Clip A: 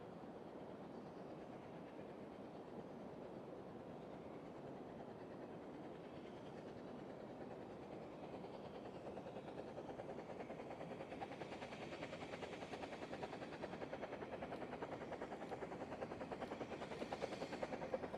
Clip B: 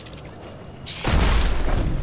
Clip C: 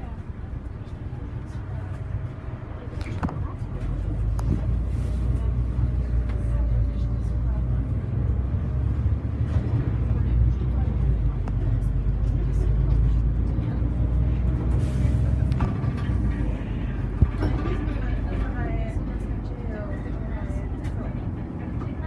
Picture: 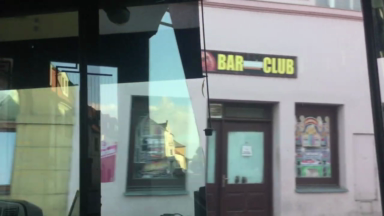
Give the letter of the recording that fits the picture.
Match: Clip C